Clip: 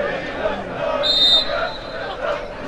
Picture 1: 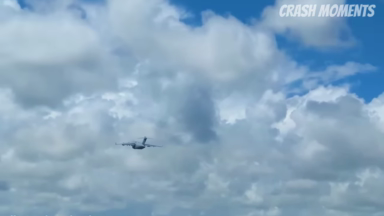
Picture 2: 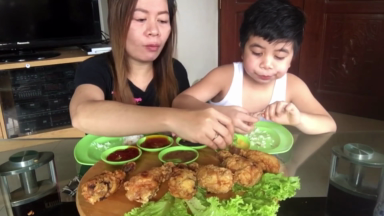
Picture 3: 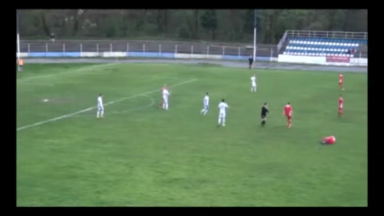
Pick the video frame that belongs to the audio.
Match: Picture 3